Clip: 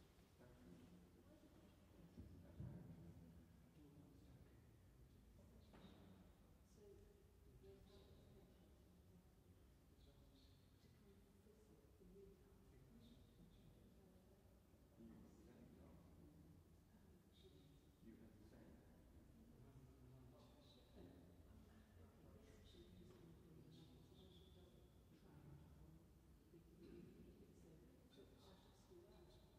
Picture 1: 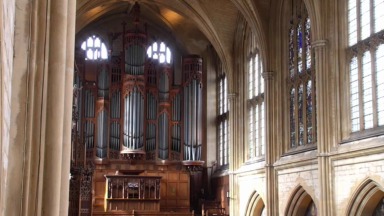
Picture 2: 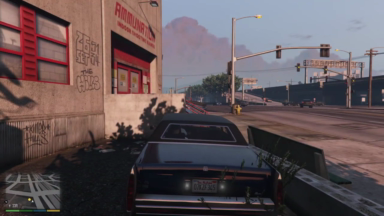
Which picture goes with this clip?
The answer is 1